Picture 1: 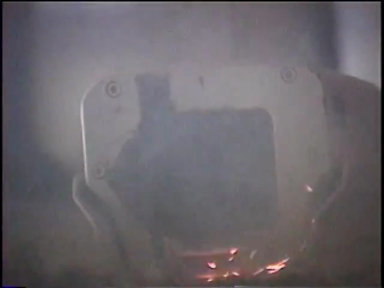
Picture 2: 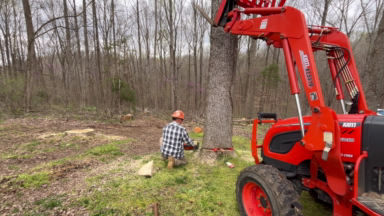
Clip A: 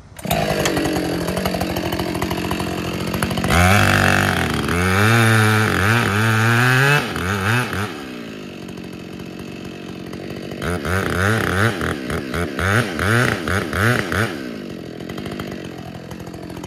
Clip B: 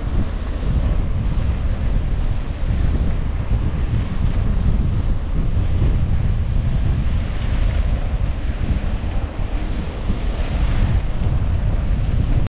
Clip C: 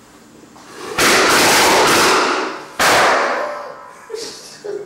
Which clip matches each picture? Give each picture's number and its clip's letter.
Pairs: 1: C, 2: A